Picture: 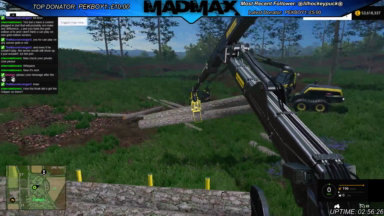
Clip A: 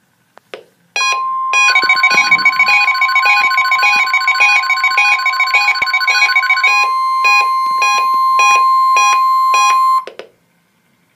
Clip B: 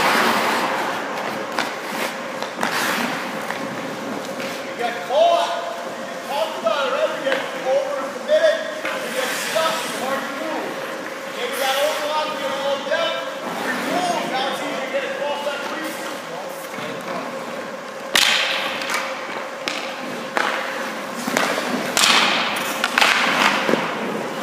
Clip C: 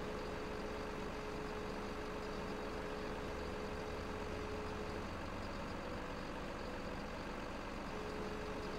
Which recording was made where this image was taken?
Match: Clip C